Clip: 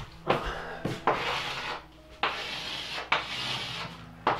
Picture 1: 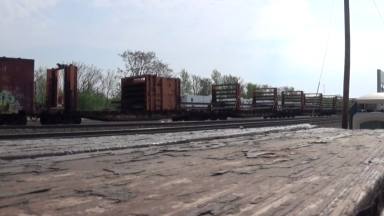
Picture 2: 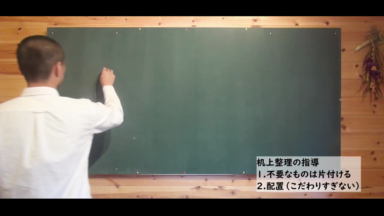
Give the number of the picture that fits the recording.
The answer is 2